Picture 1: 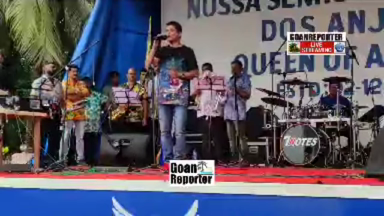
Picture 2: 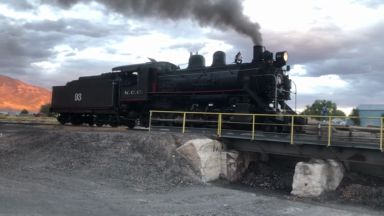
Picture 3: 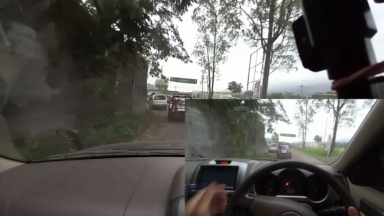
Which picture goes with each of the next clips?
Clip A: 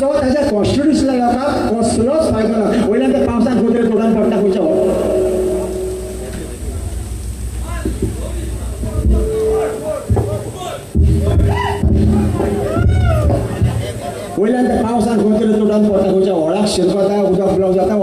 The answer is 1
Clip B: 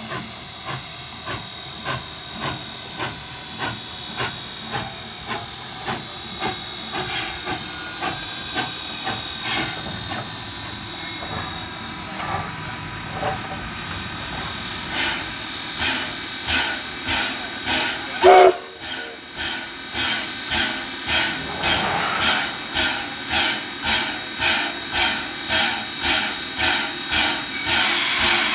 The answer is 2